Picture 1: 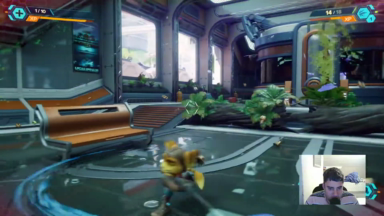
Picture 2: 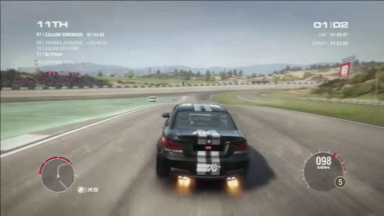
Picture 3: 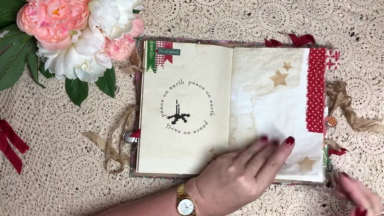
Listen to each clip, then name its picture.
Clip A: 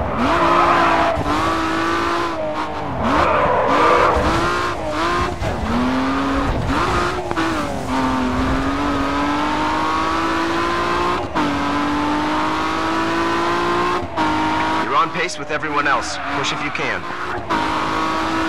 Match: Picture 2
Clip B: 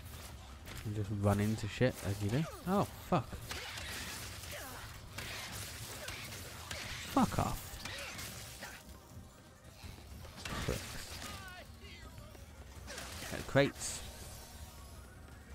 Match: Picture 1